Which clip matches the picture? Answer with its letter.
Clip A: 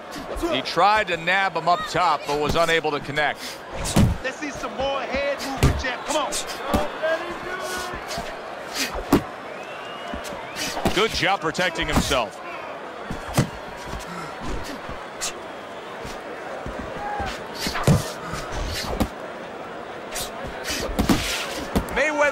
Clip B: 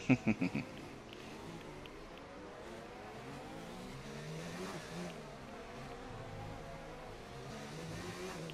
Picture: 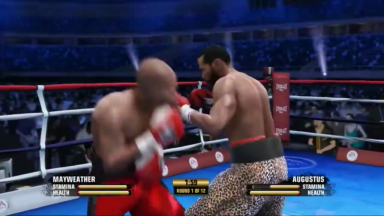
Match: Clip A